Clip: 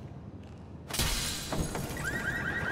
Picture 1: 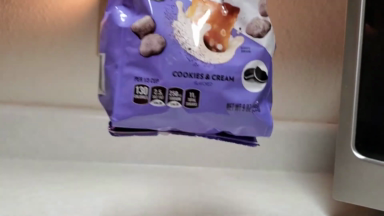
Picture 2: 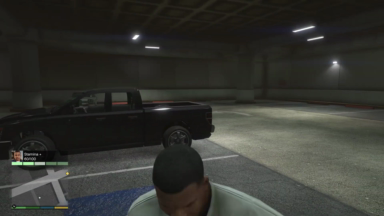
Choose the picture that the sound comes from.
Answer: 2